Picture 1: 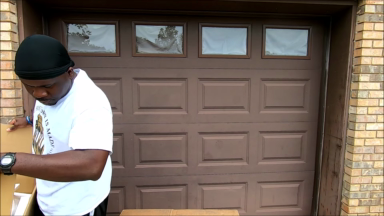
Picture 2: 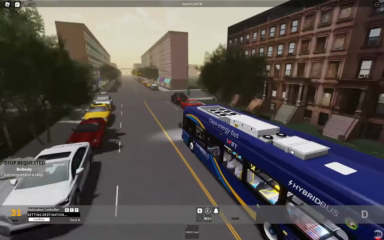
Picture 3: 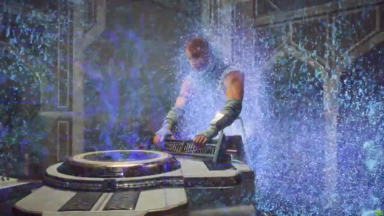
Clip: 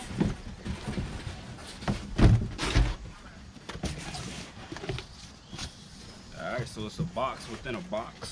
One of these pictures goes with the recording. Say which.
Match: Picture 1